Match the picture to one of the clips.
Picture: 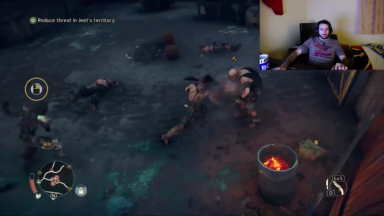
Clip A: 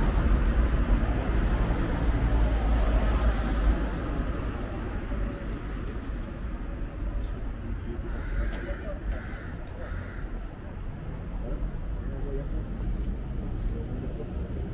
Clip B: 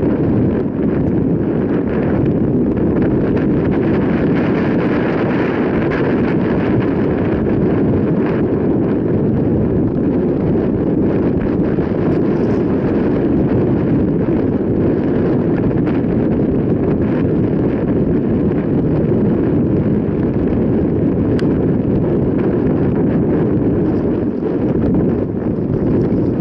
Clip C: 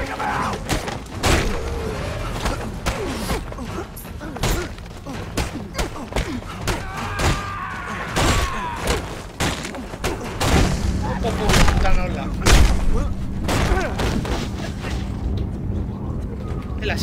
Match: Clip C